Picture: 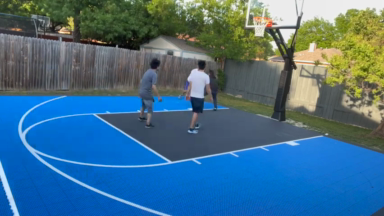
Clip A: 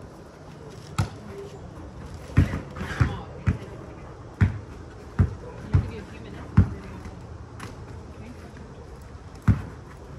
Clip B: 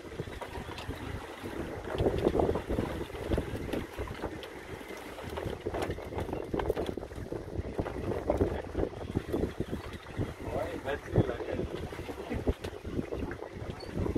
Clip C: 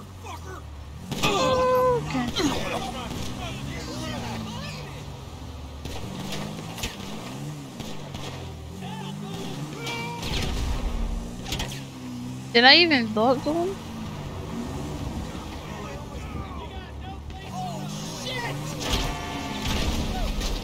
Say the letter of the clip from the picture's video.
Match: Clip A